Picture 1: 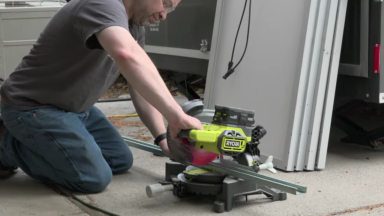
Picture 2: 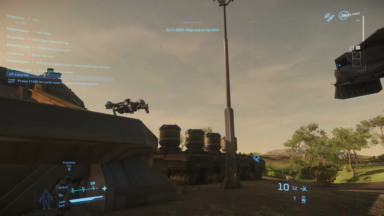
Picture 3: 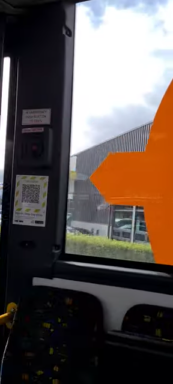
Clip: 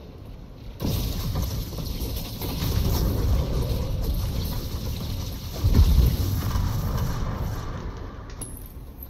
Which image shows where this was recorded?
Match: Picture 2